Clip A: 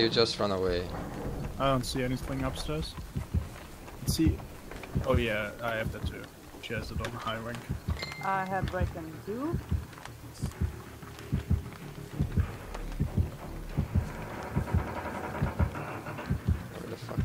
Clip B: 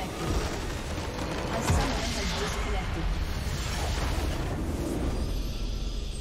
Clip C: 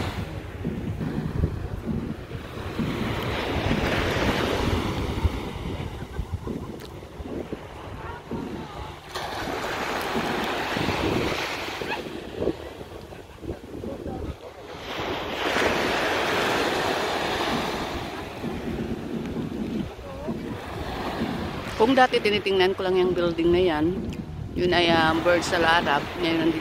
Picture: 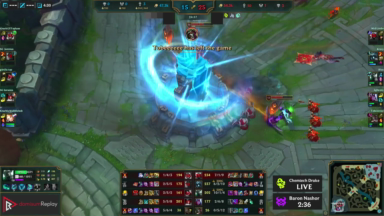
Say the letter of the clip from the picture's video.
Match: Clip B